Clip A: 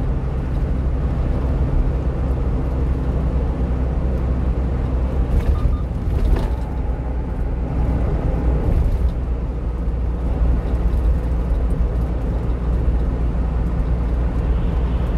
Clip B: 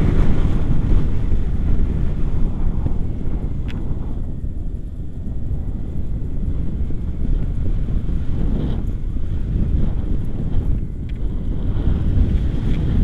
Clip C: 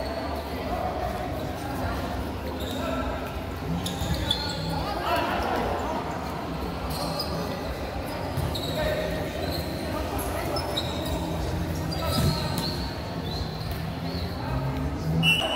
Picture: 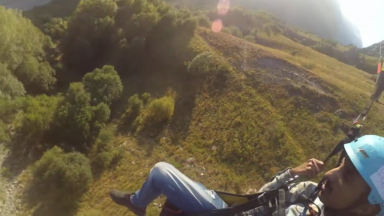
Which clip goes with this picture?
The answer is B